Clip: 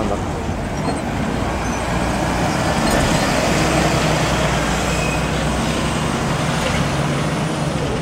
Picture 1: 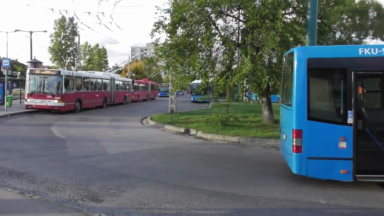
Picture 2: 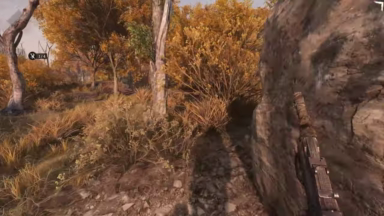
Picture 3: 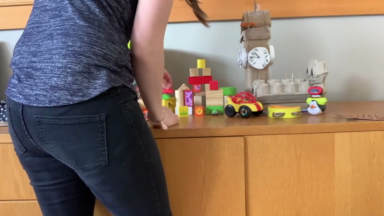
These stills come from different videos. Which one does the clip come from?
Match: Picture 1